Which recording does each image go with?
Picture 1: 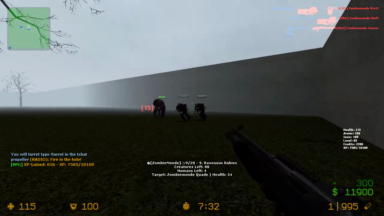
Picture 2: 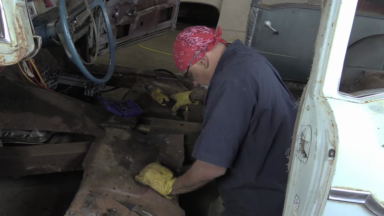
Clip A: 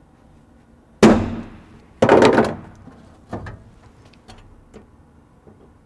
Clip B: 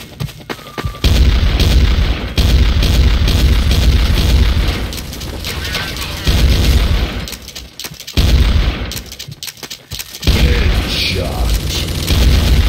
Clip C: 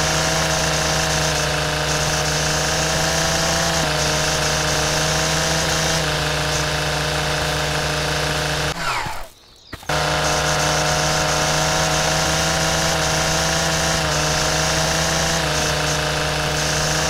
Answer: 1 B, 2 A